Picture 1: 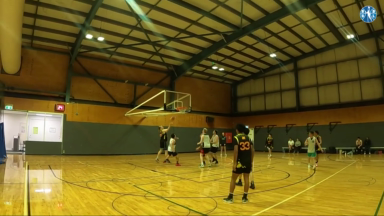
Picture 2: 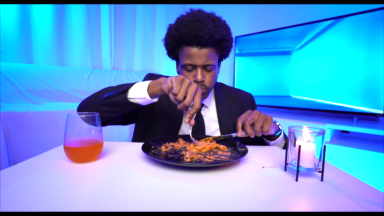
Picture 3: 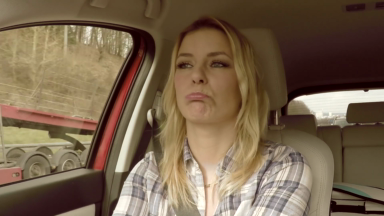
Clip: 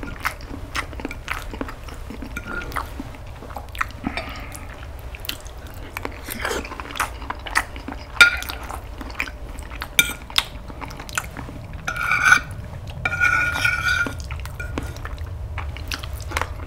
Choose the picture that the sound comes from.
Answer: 2